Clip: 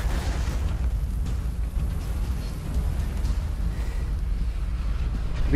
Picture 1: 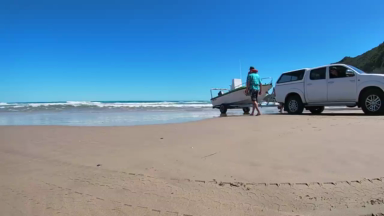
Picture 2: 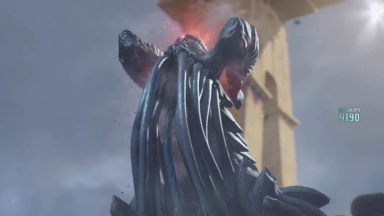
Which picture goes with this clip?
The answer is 2